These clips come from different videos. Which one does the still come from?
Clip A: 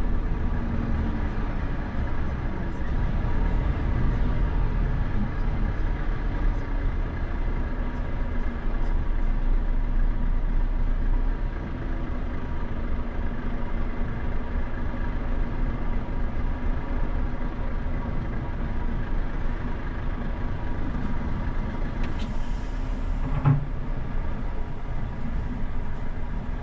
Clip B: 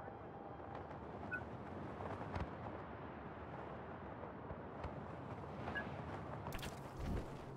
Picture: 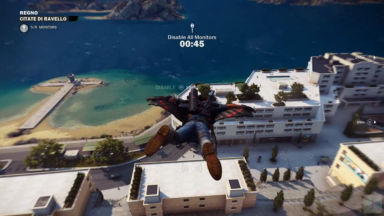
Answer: B